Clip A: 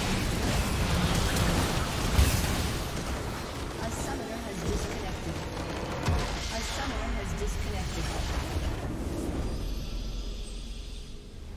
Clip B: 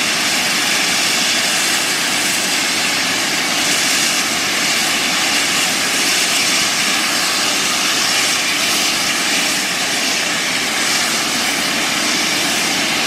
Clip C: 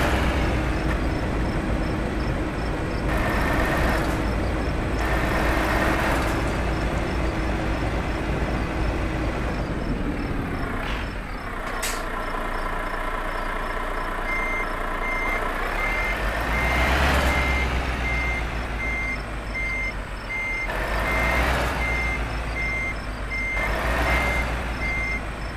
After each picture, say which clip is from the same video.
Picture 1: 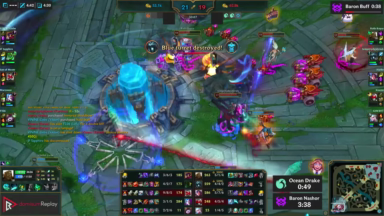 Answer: A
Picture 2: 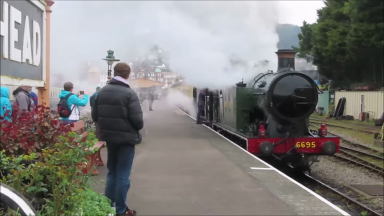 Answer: B